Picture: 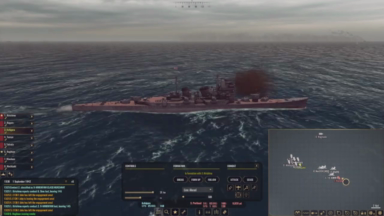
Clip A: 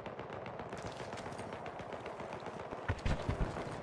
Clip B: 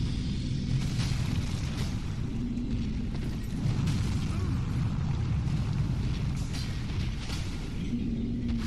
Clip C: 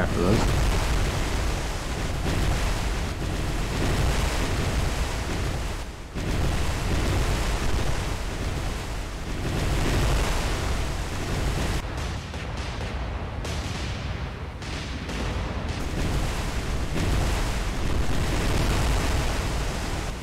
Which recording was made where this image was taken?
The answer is C